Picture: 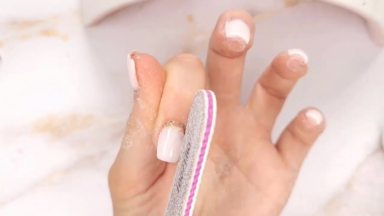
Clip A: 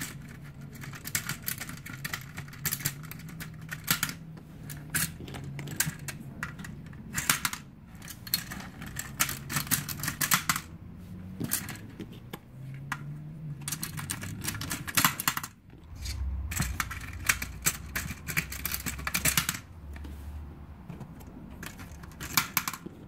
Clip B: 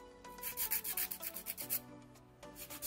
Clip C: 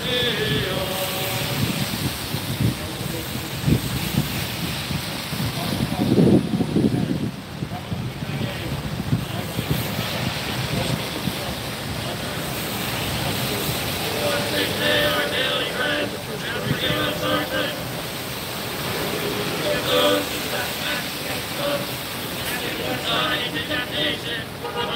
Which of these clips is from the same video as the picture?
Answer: B